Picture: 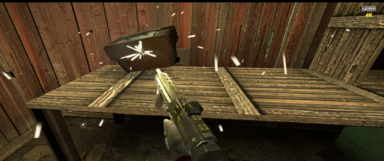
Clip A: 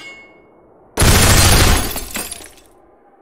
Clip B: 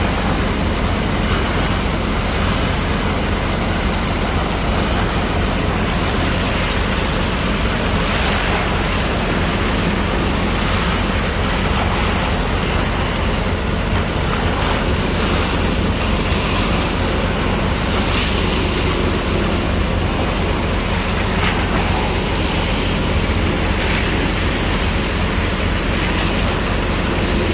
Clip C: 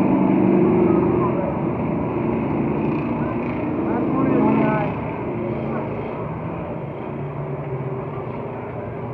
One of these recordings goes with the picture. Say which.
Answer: A